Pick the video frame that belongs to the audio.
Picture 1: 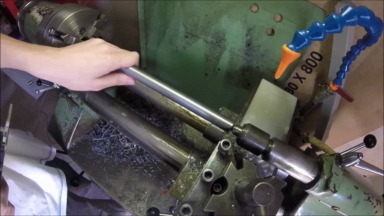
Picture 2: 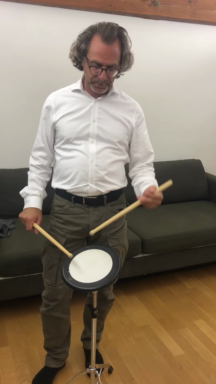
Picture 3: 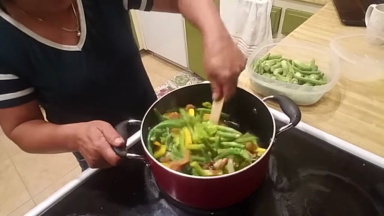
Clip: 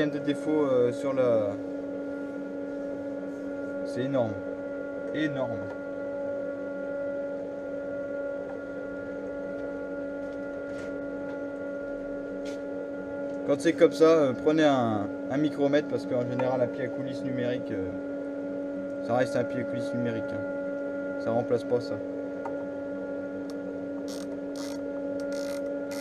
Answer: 1